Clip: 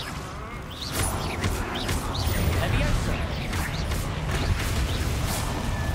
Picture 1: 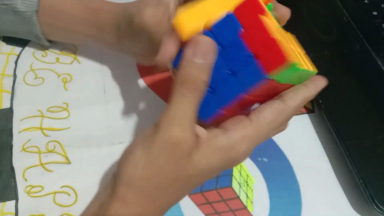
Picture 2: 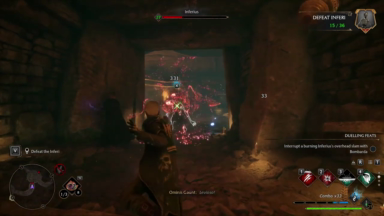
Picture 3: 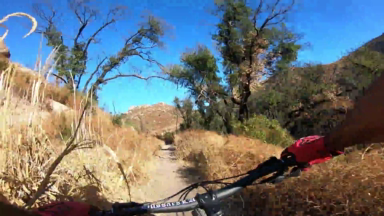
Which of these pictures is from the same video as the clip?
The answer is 2